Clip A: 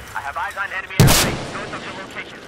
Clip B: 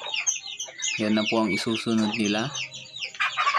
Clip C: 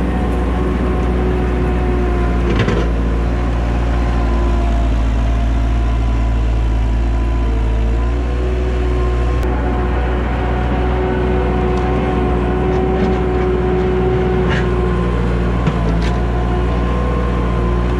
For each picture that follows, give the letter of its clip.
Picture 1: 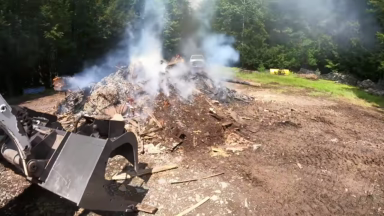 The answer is C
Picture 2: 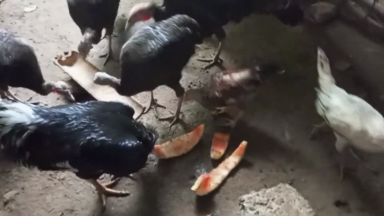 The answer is B